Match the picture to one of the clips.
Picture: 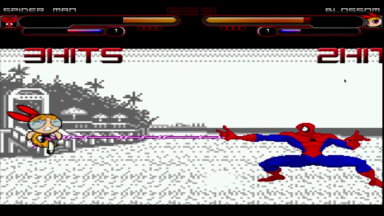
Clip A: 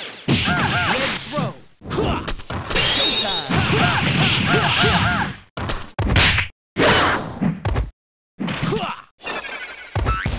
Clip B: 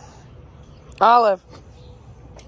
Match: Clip A